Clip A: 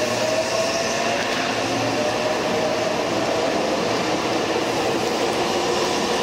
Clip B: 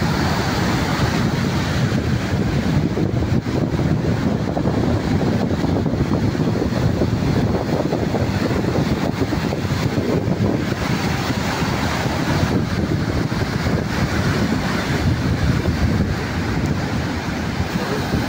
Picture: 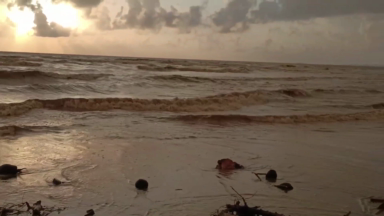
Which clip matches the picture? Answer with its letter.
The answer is B